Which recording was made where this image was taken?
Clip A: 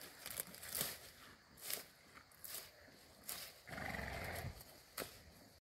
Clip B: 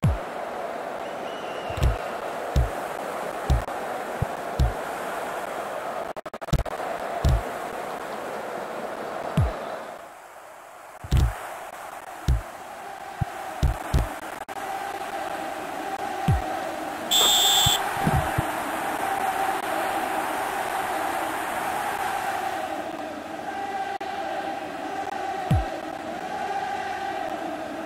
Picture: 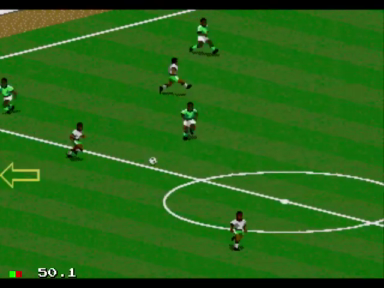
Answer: B